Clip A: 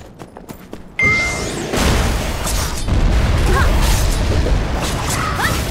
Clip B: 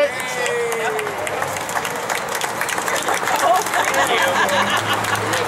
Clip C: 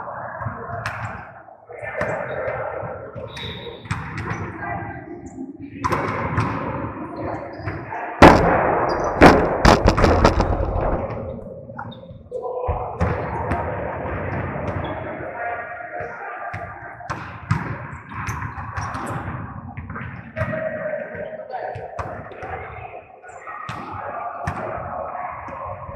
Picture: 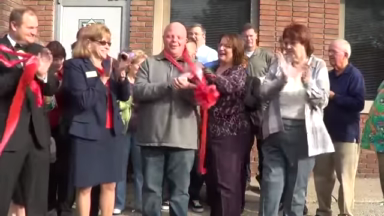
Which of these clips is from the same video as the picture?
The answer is B